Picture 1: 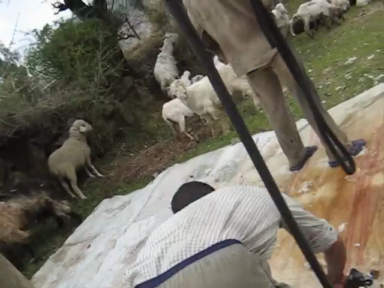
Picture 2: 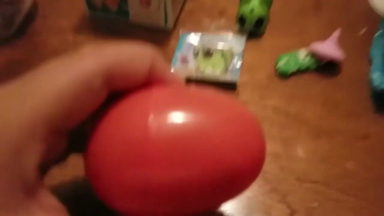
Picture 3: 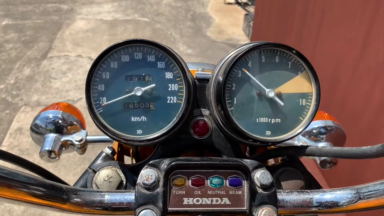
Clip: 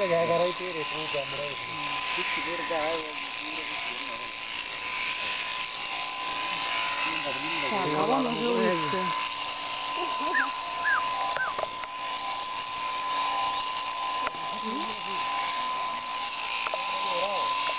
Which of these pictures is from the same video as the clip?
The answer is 1